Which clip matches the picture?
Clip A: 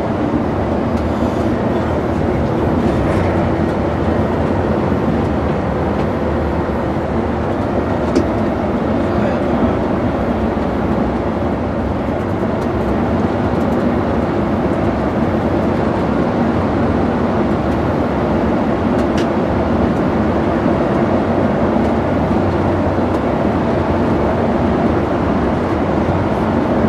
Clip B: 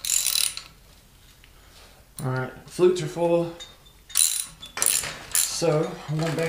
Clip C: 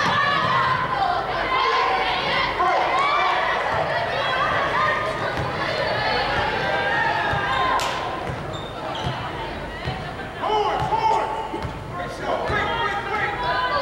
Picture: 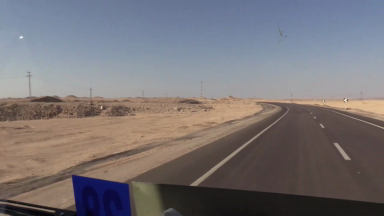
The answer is A